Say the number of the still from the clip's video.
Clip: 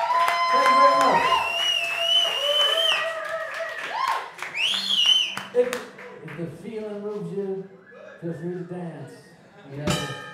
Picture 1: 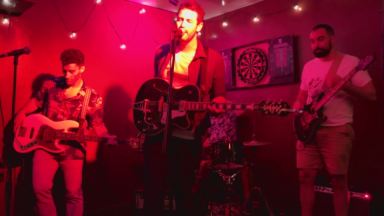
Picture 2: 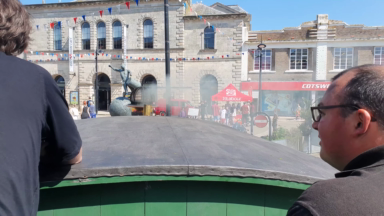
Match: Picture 1